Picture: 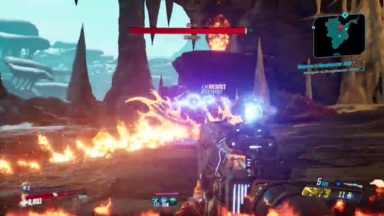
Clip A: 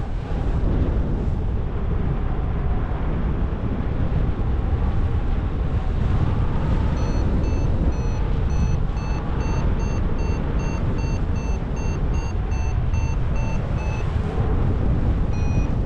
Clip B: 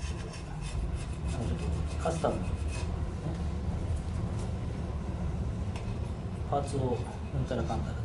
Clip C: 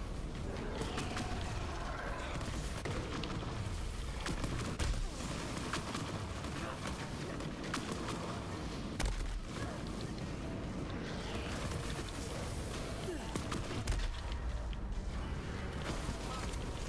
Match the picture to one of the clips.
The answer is C